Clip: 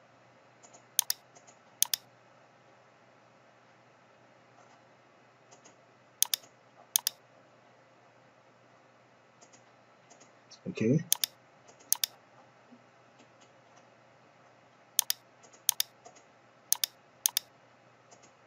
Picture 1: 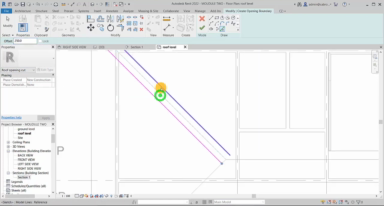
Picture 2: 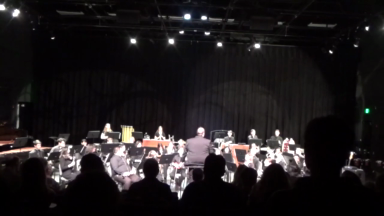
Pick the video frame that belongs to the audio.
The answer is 1